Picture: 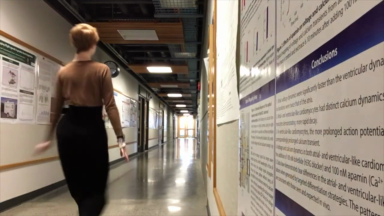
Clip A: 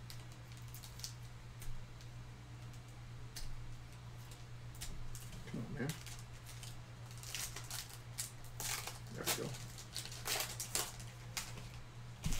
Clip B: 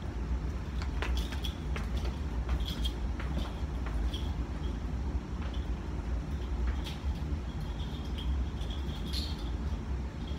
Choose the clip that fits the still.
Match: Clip B